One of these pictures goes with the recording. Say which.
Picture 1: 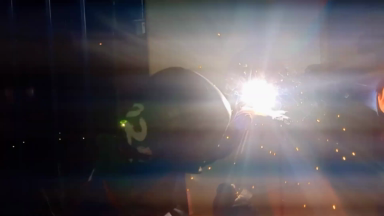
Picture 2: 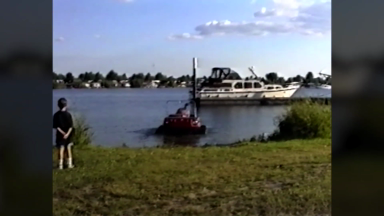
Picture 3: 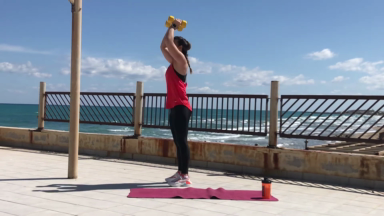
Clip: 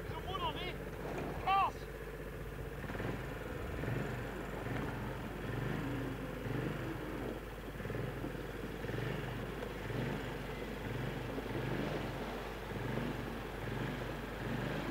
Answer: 2